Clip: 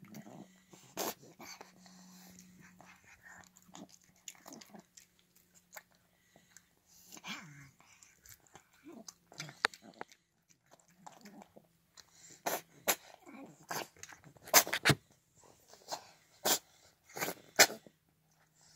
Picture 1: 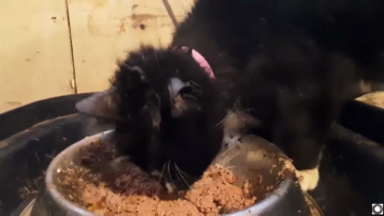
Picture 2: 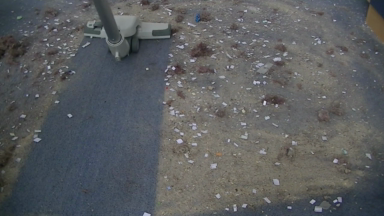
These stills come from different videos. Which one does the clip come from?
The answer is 1